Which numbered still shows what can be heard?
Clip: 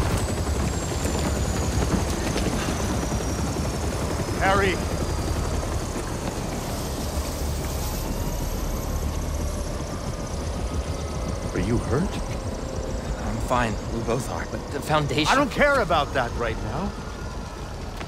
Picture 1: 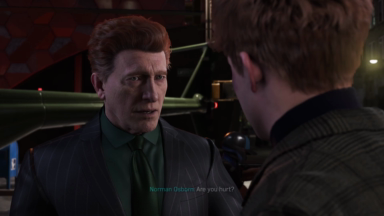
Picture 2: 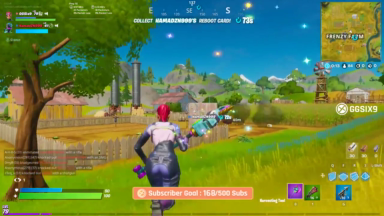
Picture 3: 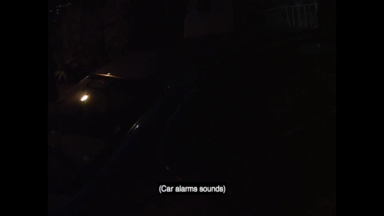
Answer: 1